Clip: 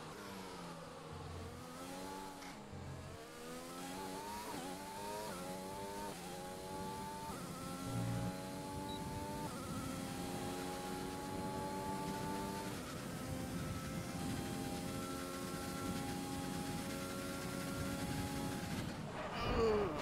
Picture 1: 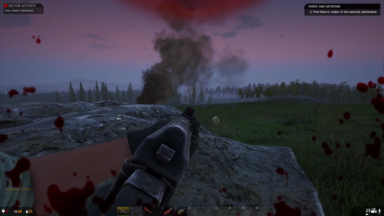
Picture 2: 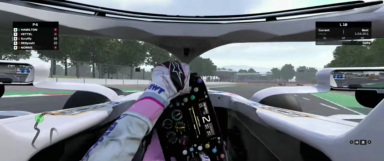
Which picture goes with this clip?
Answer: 2